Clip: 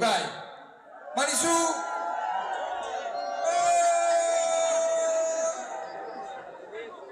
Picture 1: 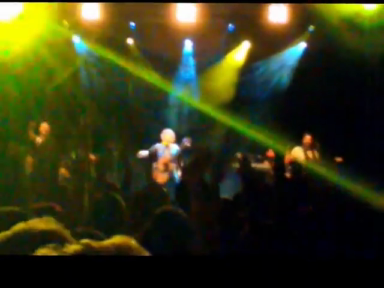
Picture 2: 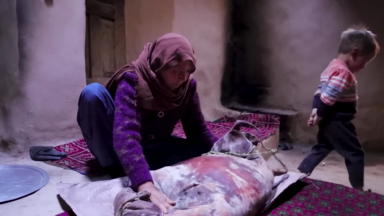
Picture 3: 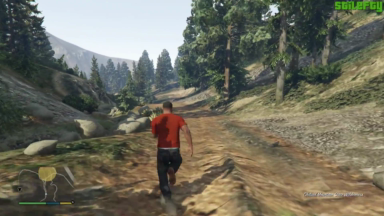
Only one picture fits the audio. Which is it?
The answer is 1